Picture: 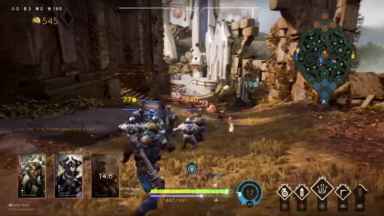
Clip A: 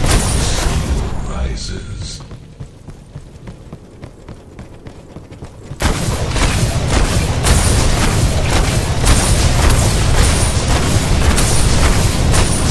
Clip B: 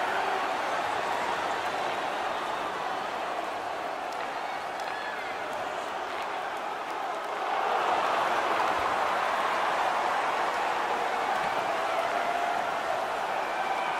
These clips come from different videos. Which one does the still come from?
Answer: A